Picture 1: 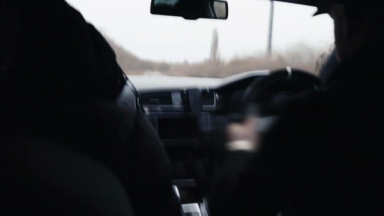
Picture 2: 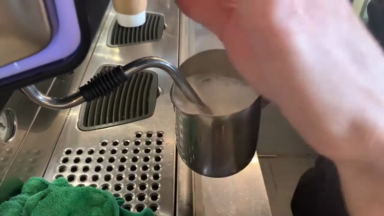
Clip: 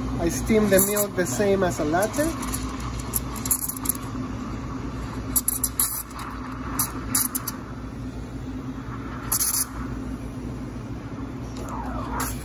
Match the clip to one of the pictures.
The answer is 2